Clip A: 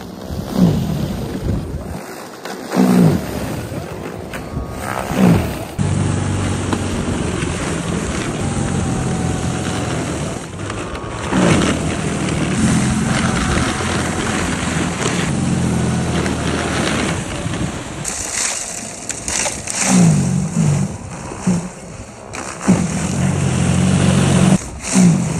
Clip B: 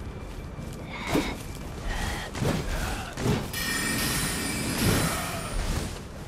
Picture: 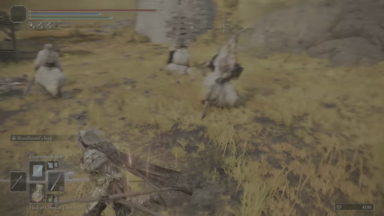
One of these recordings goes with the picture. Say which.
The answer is B